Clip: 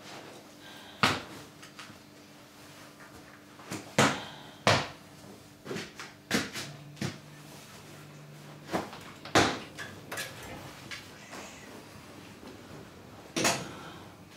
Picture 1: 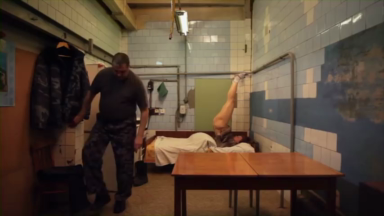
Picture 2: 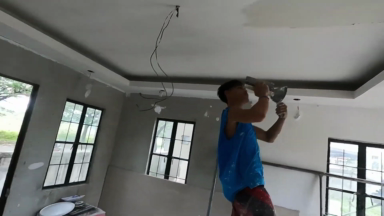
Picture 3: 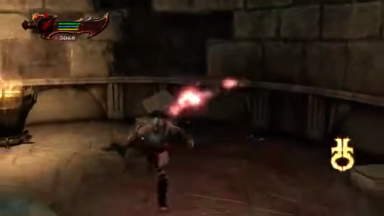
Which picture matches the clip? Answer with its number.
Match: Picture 1